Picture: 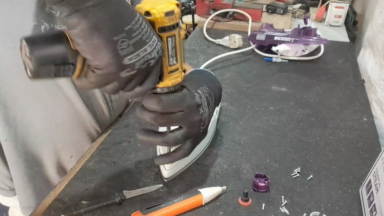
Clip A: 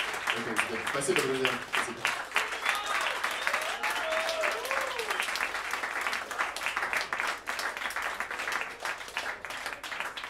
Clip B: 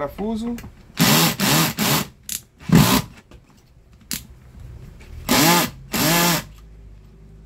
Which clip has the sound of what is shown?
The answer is B